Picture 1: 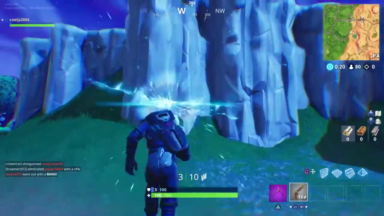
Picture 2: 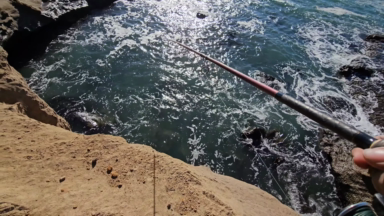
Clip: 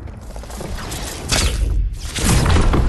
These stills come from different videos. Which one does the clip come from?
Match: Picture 1